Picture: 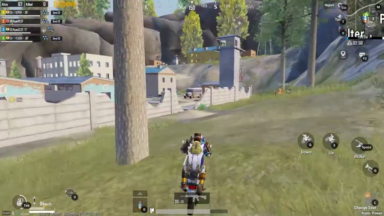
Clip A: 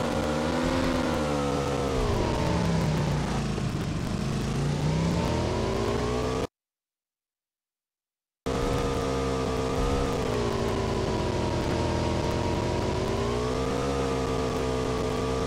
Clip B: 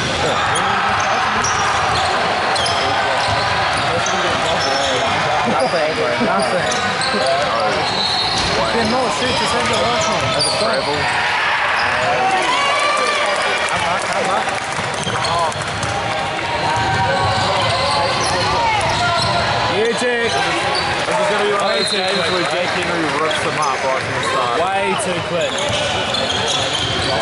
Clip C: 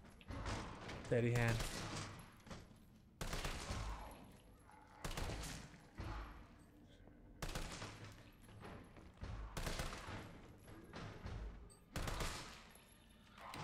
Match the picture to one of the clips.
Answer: A